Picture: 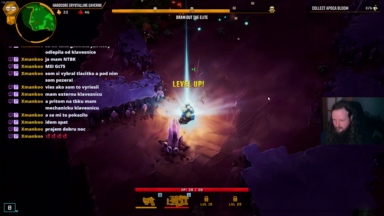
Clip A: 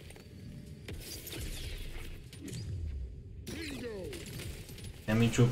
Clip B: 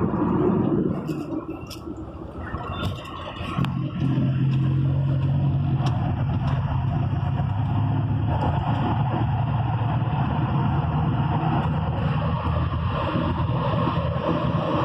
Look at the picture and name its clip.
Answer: A